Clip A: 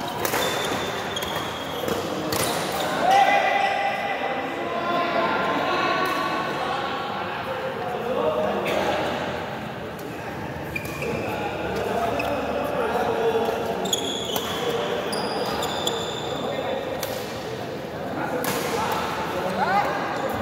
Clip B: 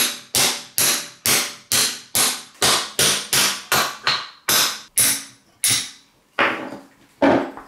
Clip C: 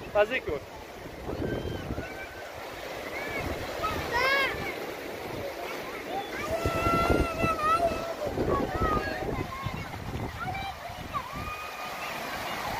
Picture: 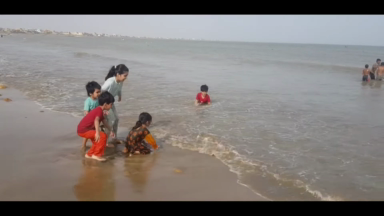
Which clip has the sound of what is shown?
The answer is C